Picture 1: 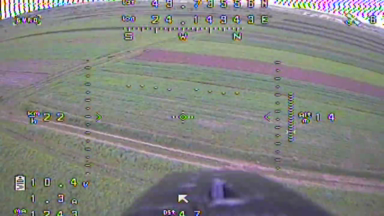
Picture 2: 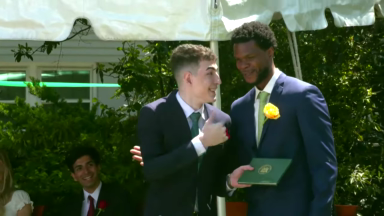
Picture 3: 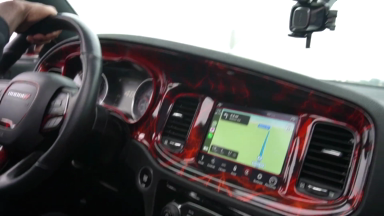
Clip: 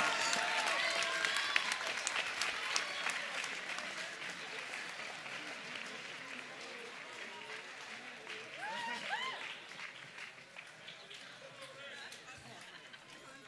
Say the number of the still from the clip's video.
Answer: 2